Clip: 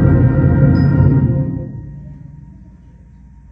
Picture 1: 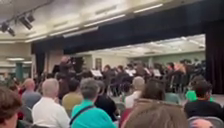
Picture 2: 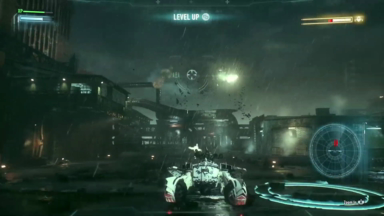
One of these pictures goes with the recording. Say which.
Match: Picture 1